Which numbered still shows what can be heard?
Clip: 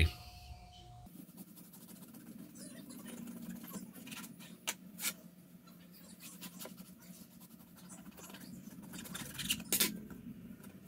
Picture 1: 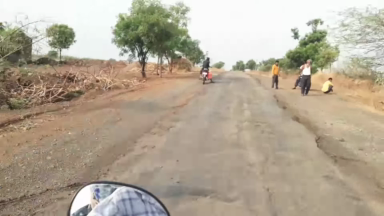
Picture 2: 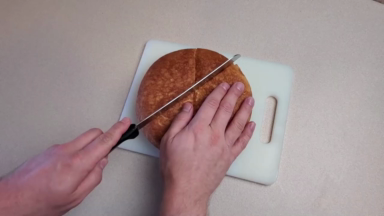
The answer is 2